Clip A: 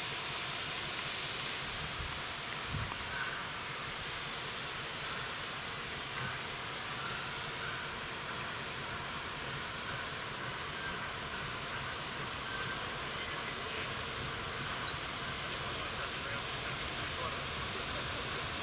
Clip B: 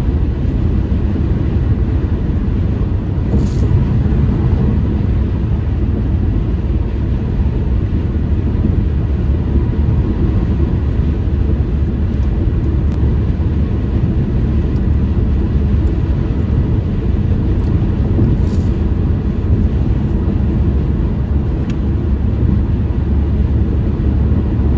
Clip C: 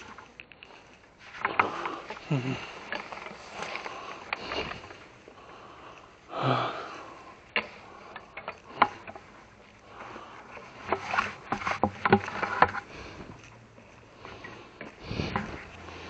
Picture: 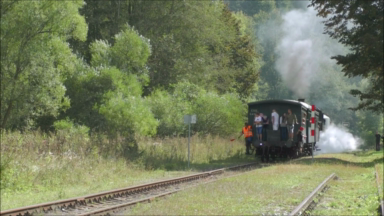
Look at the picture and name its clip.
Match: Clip A